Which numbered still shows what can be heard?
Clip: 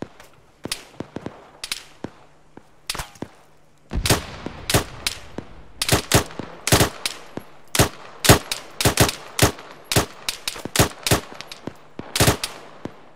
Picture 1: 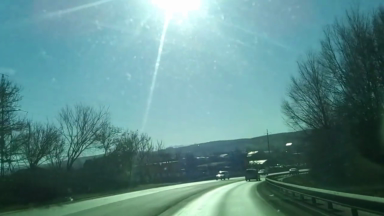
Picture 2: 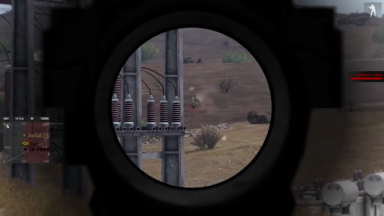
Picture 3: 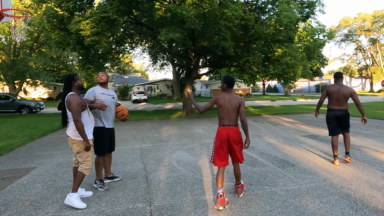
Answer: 2